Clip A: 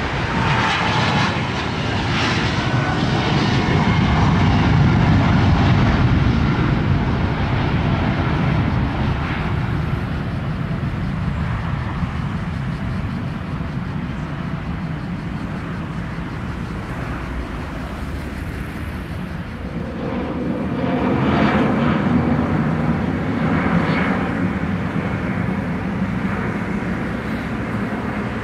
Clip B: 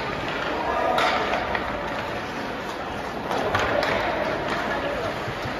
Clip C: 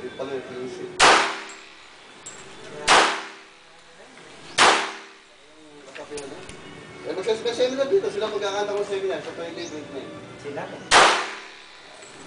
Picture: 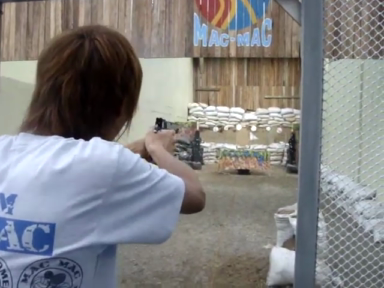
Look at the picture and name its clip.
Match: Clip C